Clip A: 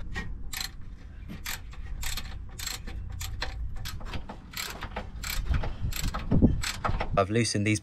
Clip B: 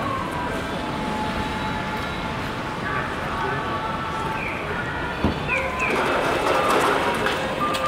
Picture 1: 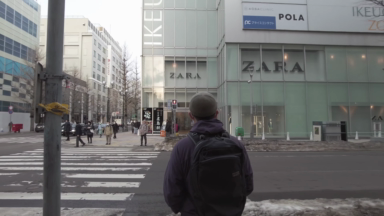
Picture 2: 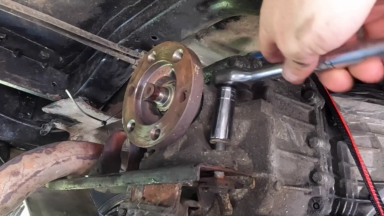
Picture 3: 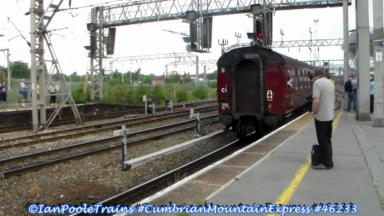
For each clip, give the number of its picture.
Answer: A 2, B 1